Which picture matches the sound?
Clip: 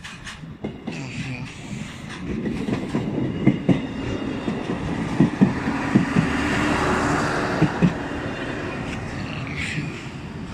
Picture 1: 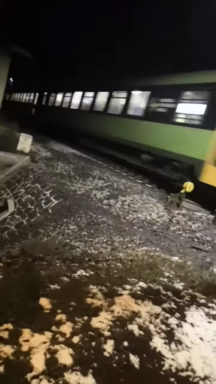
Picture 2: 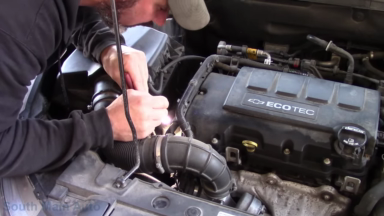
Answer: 1